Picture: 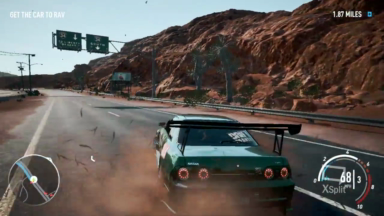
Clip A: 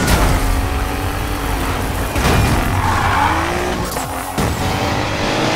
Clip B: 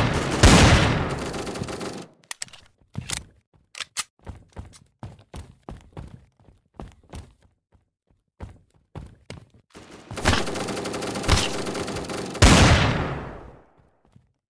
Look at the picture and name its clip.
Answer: A